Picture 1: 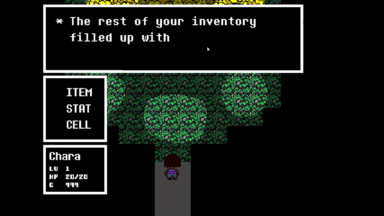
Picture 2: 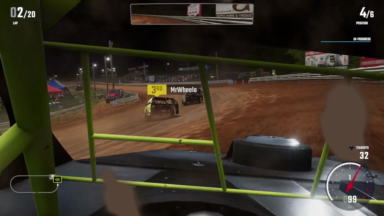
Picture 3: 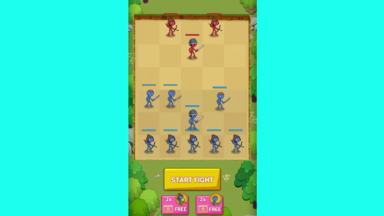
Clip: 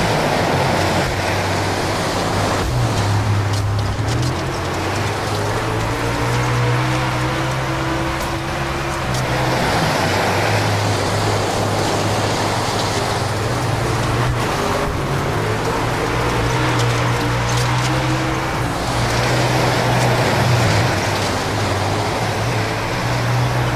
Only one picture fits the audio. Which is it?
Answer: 2